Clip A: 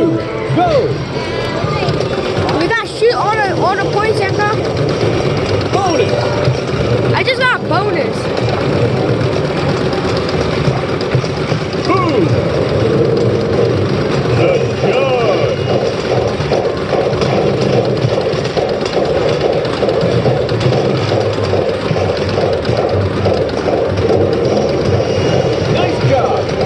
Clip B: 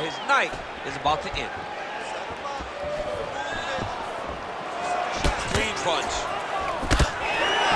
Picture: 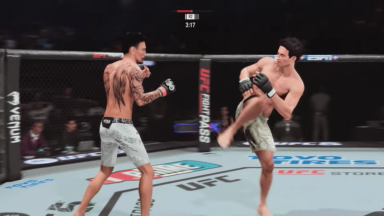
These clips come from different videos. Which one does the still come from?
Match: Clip B